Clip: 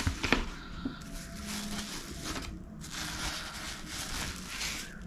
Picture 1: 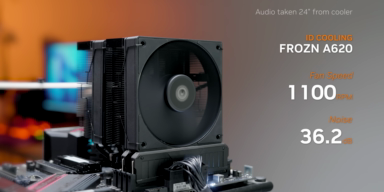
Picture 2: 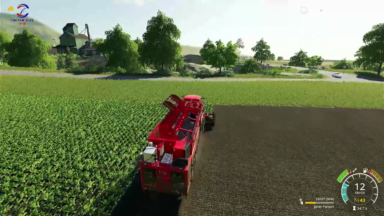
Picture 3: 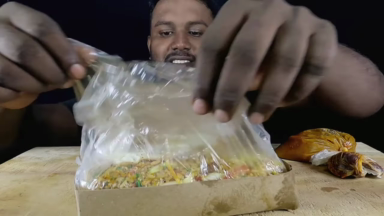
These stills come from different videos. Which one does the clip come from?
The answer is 3